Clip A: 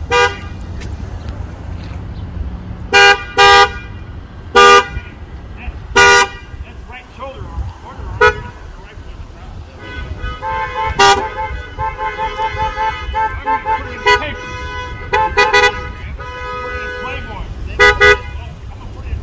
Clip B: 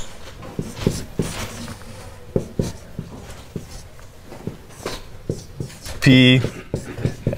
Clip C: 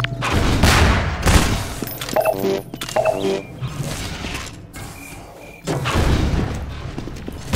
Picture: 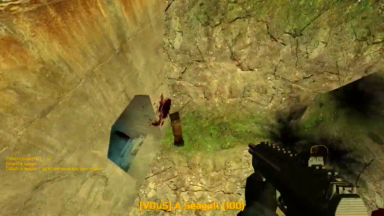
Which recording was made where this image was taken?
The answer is C